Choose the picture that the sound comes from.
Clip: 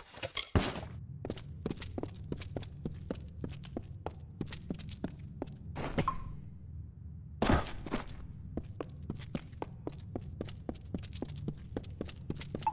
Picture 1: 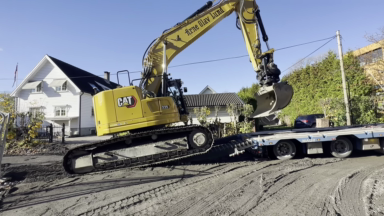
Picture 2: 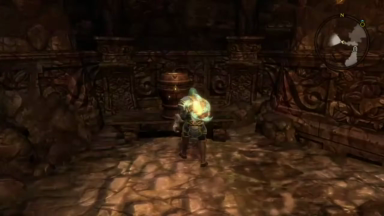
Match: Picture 2